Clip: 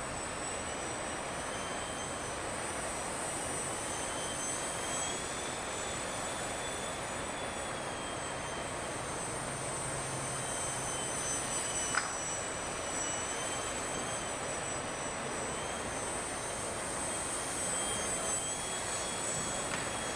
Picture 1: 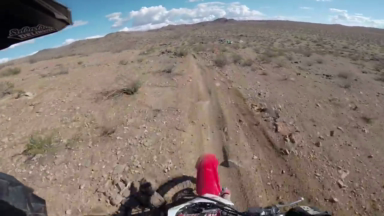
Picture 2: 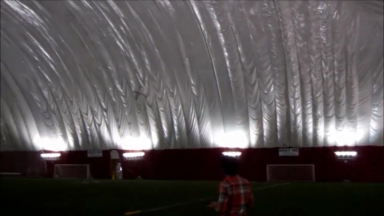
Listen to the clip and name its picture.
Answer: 2